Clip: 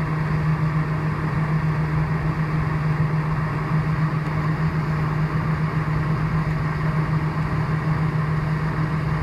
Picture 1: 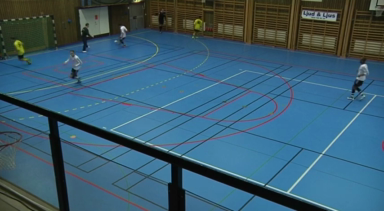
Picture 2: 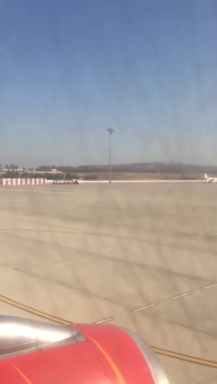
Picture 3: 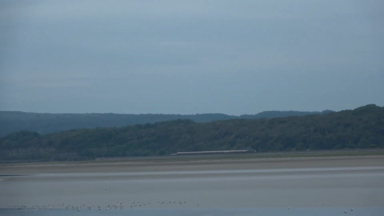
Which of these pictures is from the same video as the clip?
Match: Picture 2